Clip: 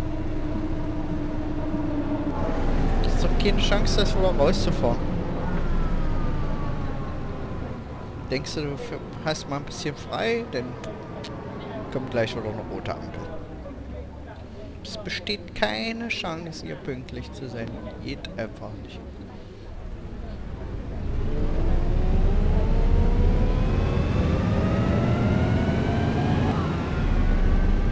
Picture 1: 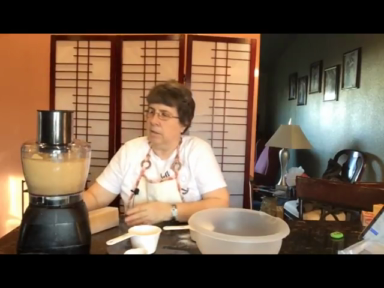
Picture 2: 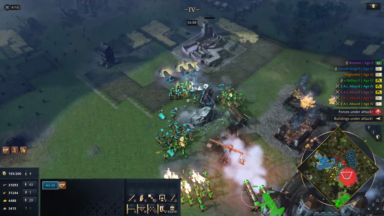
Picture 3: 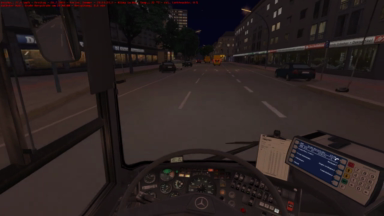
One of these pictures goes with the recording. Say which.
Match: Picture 3